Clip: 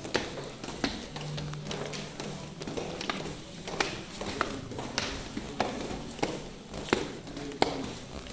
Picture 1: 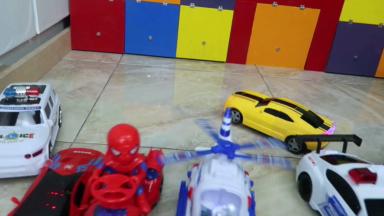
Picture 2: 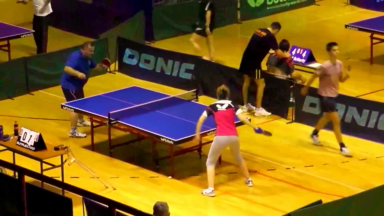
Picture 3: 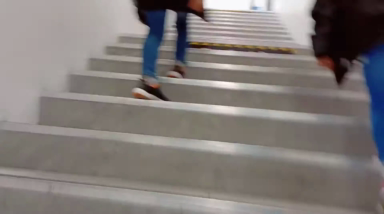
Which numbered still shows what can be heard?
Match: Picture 3